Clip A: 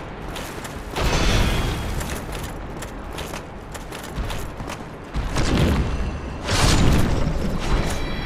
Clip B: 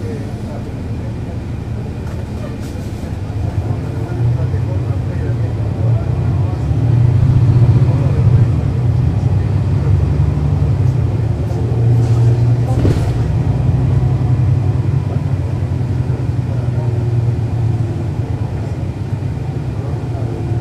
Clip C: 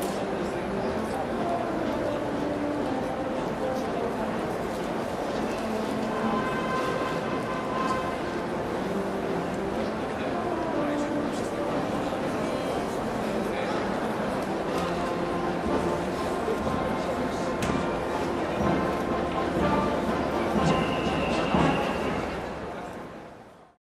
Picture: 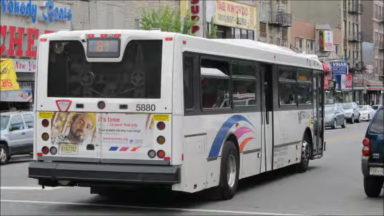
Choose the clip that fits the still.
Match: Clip B